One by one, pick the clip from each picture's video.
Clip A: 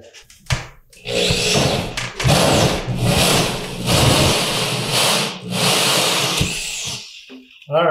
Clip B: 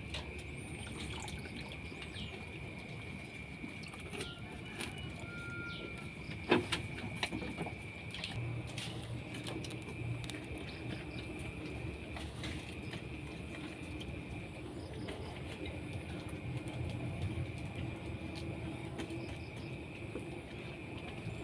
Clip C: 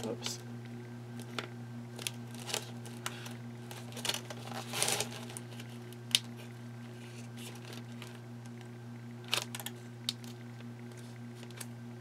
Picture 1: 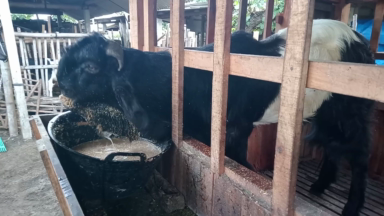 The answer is B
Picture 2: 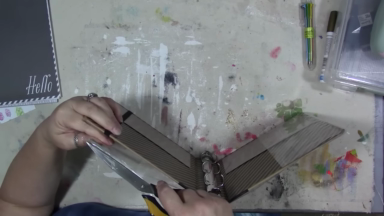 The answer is C